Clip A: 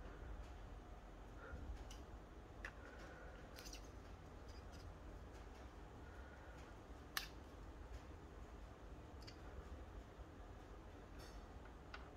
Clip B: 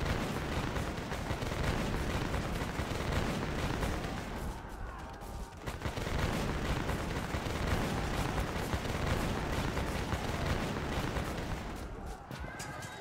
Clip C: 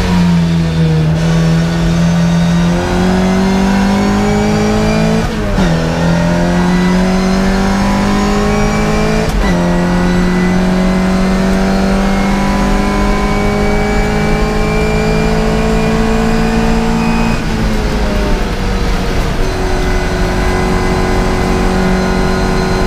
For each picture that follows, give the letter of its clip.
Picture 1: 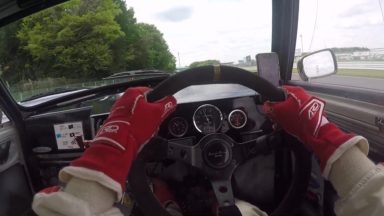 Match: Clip C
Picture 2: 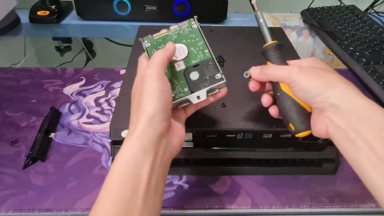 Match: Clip A